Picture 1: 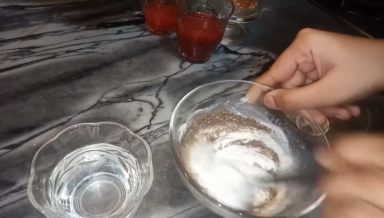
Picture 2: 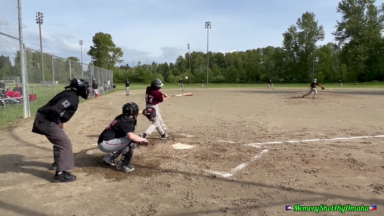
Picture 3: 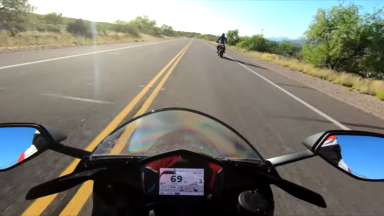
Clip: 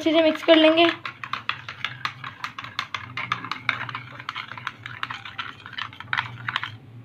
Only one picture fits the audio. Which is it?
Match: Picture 1